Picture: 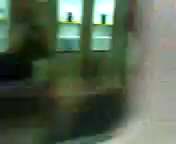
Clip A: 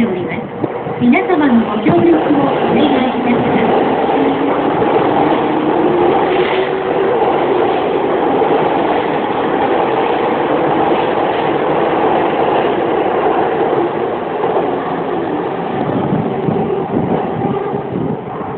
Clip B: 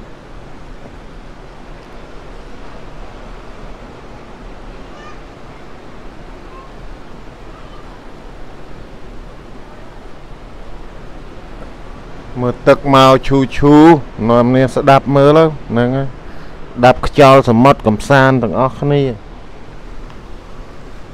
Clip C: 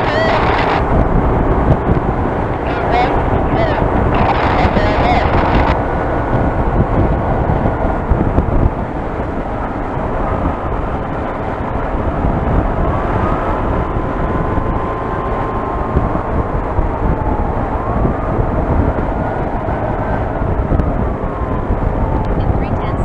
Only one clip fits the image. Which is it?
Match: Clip A